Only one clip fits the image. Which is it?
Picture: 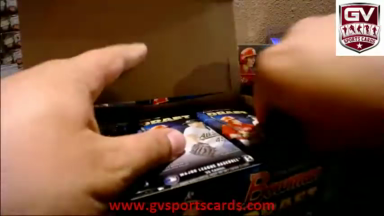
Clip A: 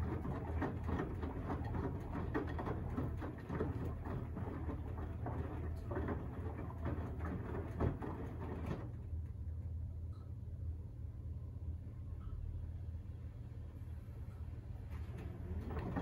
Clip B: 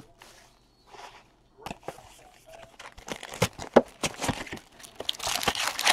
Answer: B